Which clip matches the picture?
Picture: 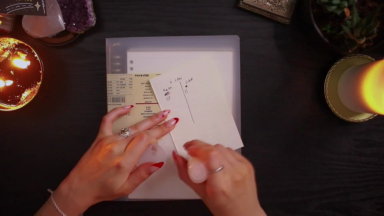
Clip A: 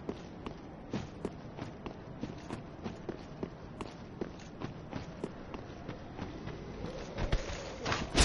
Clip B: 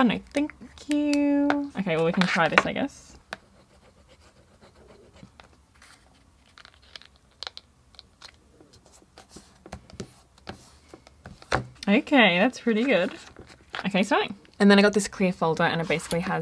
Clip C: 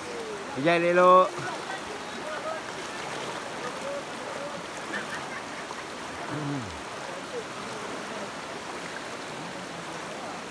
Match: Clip B